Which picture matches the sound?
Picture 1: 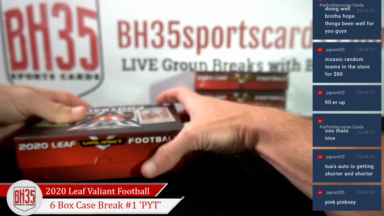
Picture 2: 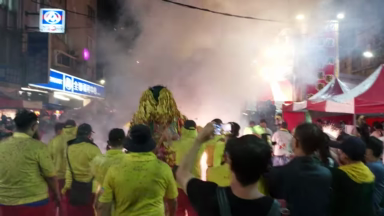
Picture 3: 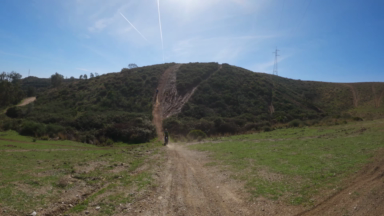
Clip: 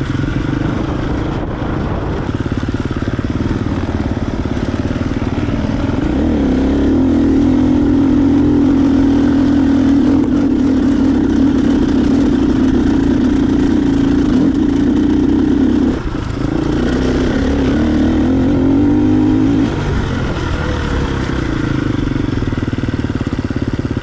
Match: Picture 3